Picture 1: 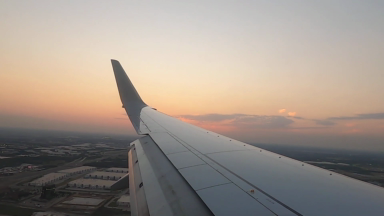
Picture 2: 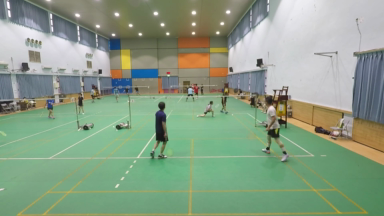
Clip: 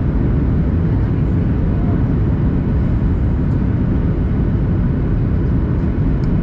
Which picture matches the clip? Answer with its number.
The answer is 1